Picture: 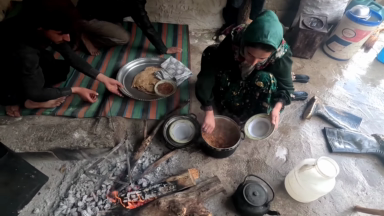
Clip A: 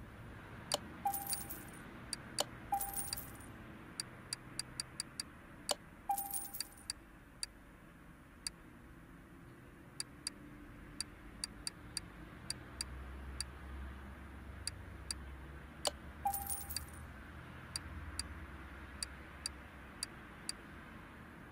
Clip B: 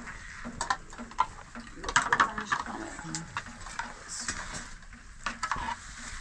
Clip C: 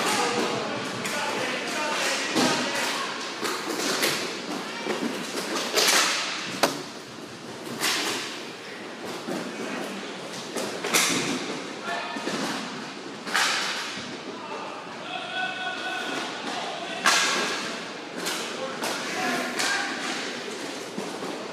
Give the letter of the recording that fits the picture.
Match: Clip B